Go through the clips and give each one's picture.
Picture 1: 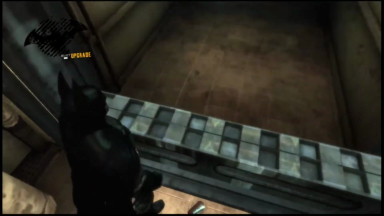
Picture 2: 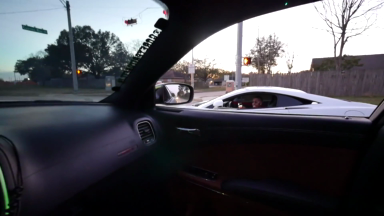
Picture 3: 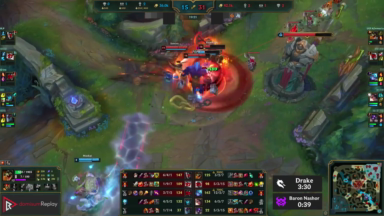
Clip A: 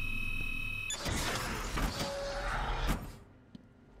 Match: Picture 1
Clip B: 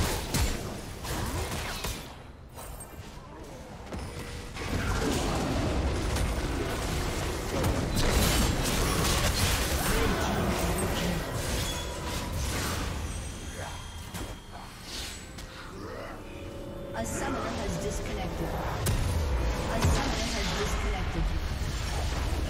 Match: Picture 3